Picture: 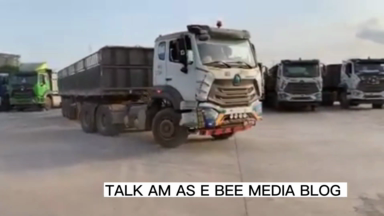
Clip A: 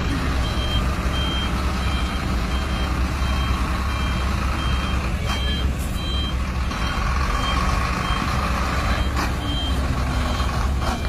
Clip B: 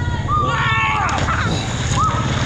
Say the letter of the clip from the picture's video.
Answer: A